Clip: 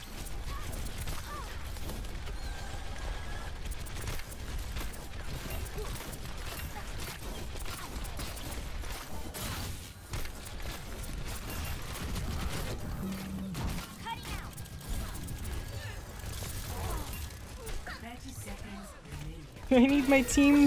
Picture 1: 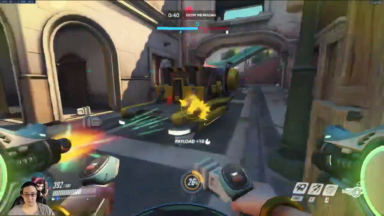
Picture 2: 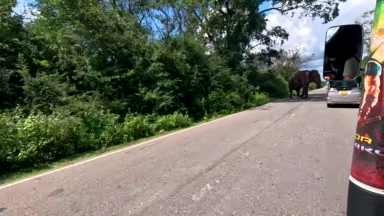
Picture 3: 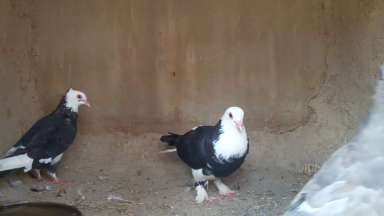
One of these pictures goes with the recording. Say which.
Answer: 1